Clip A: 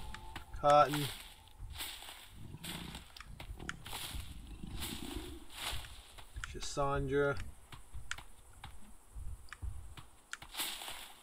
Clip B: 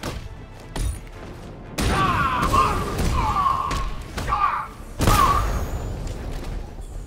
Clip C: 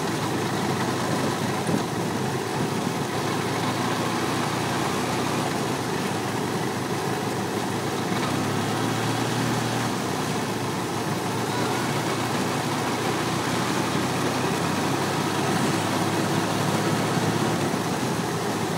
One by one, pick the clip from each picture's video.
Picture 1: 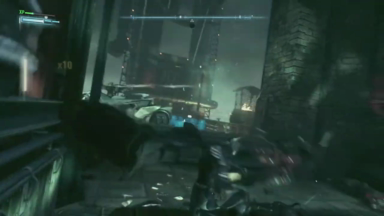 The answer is B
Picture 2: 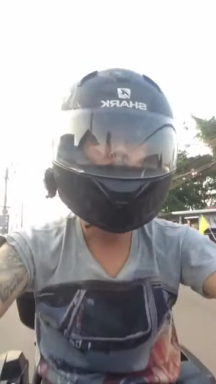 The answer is C